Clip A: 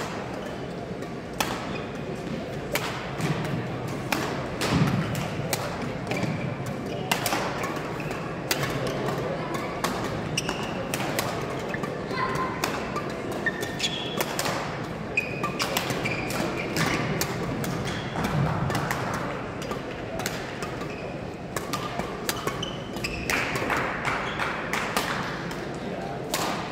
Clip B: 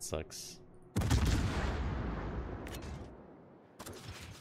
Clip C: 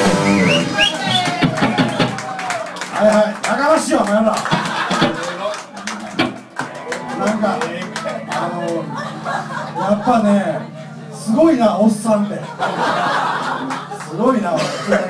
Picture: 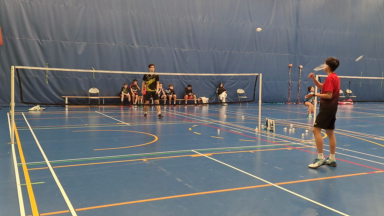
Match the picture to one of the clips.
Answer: A